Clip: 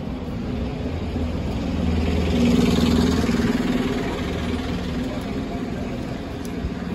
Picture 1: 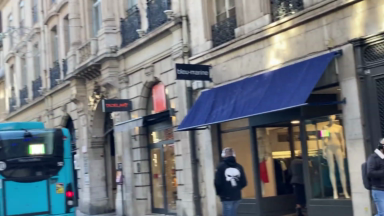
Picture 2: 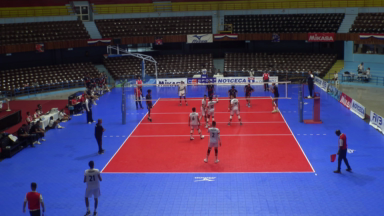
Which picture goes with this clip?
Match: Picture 1